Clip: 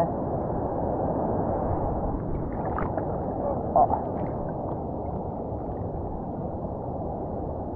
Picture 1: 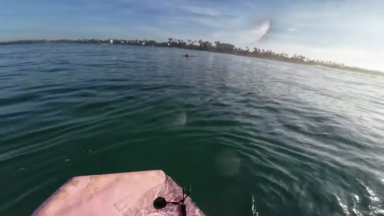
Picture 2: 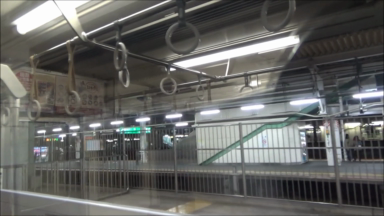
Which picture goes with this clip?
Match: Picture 1